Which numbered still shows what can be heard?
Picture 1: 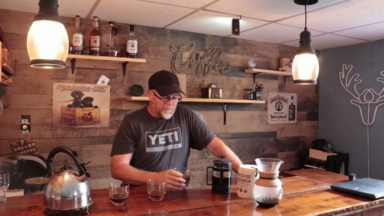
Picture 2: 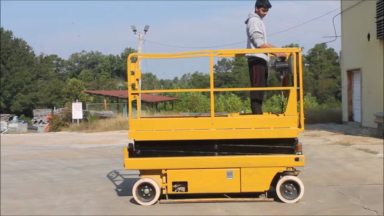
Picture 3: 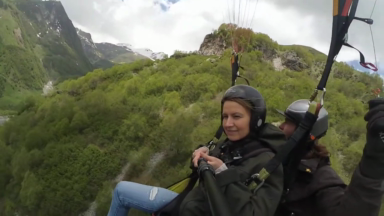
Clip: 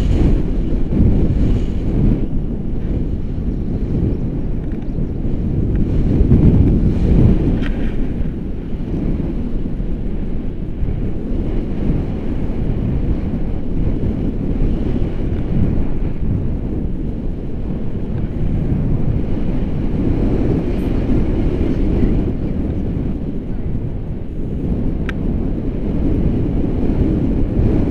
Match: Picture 3